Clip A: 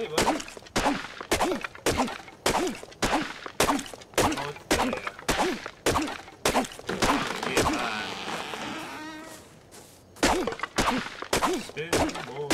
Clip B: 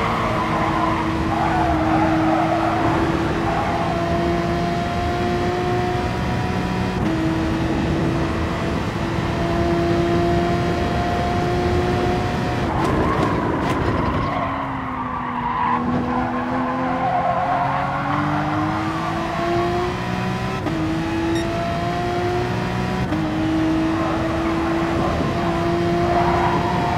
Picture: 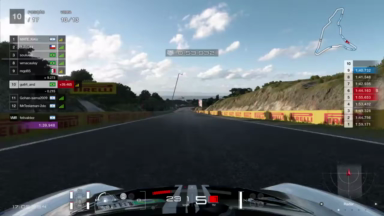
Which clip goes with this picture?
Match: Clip B